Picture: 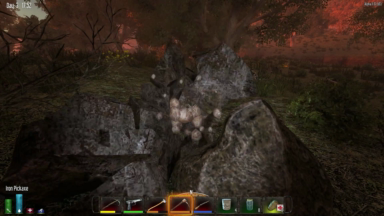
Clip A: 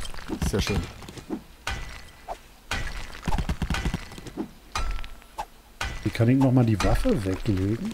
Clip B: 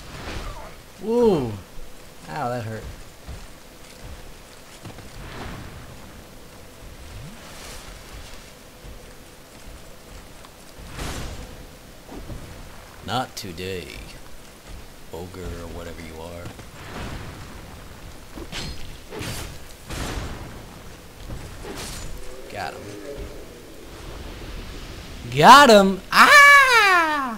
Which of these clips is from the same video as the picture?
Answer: A